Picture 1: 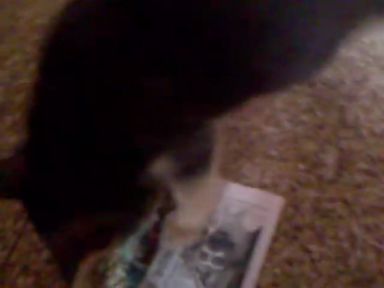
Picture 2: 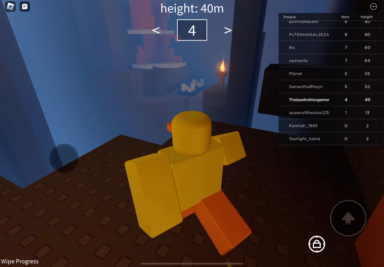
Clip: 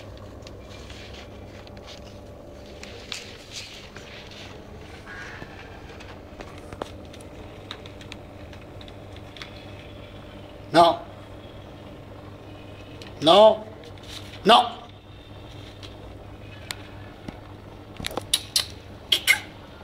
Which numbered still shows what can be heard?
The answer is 1